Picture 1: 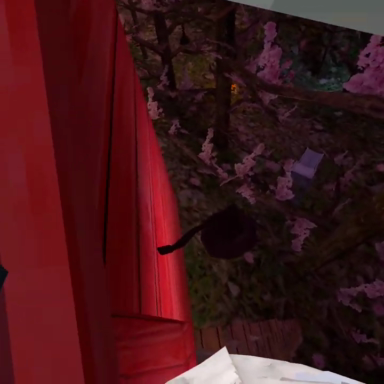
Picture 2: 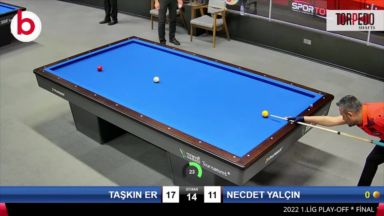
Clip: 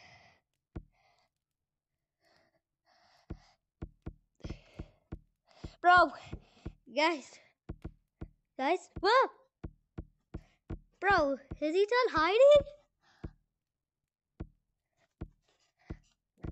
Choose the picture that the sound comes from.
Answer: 1